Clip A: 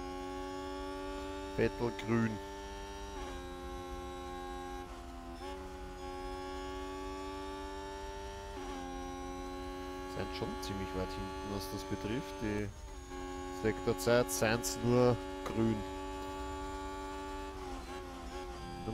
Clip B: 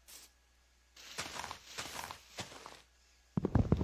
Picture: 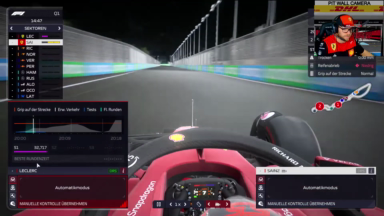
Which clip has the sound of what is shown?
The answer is A